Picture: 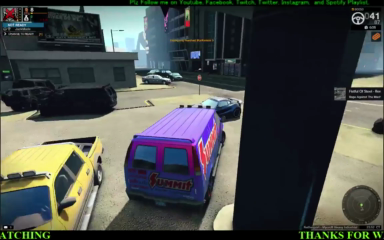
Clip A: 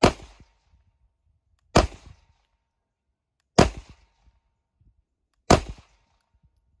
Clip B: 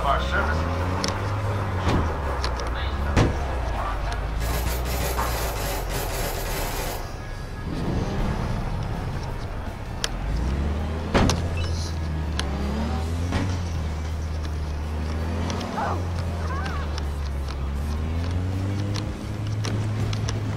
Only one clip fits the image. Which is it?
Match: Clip B